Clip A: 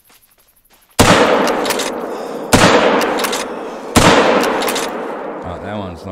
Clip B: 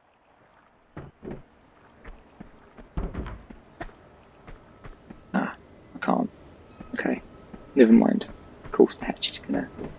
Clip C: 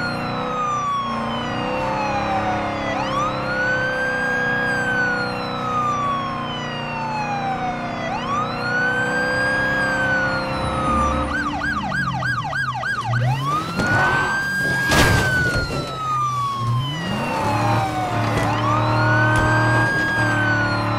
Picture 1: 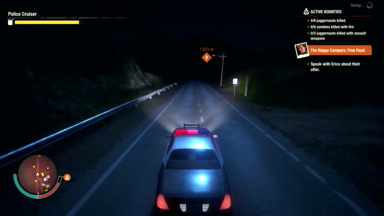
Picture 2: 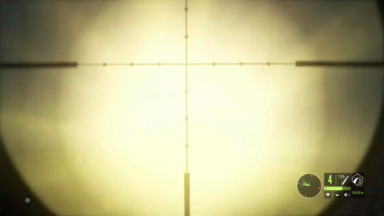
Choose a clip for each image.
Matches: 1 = C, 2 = A